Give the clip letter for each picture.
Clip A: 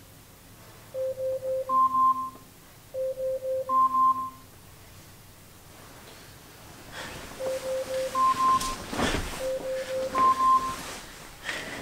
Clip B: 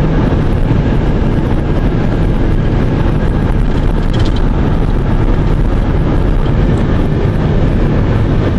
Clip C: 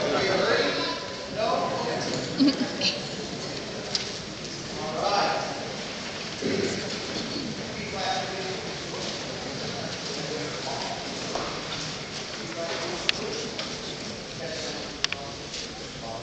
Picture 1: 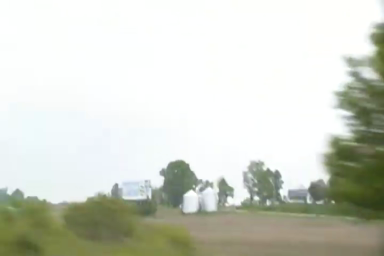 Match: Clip B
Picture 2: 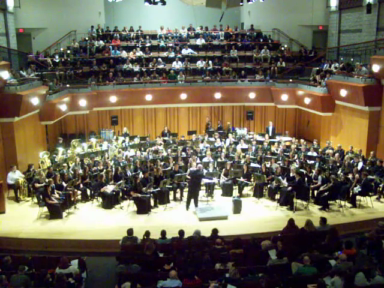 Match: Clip C